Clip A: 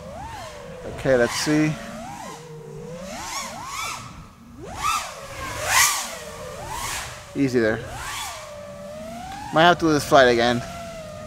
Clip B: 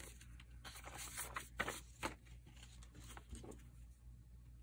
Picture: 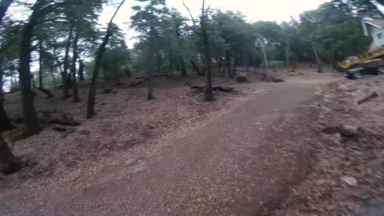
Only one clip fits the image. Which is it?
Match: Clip A